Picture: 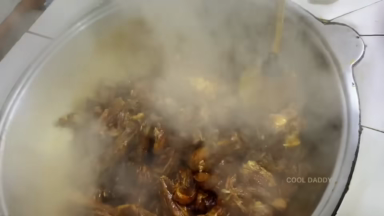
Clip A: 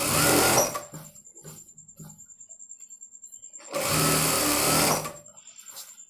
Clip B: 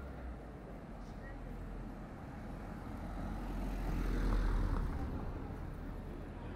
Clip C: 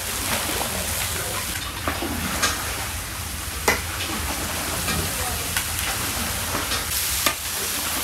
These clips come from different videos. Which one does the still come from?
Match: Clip C